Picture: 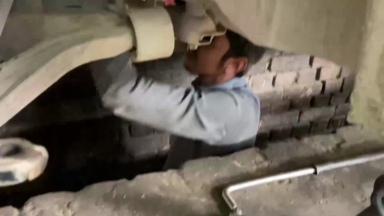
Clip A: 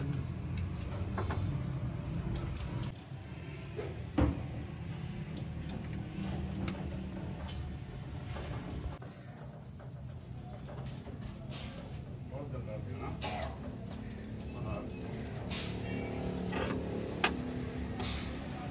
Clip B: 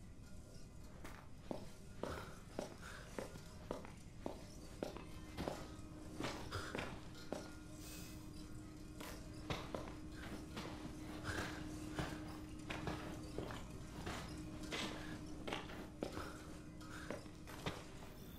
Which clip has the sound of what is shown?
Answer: A